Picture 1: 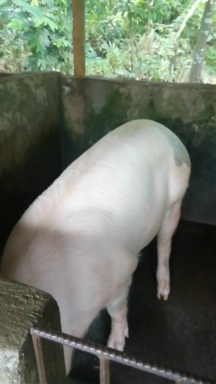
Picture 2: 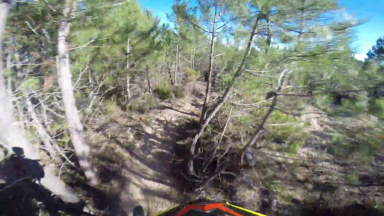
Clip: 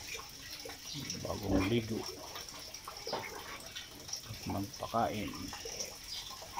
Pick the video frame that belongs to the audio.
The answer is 1